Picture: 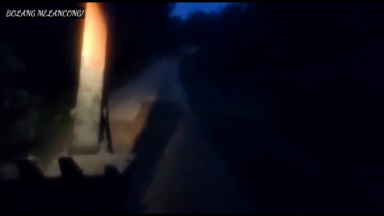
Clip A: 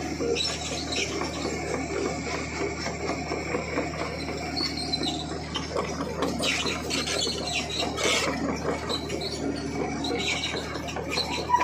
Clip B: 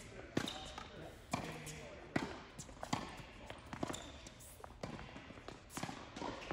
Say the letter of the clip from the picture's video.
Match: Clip A